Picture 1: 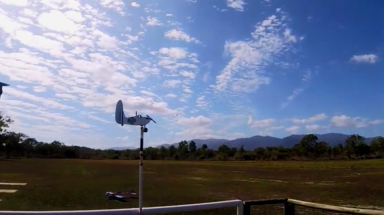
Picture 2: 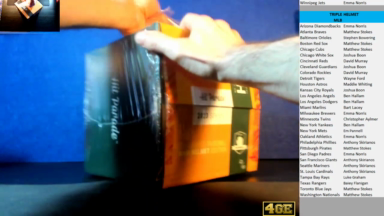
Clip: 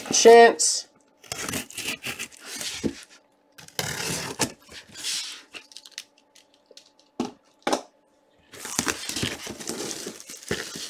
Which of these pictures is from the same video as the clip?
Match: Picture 2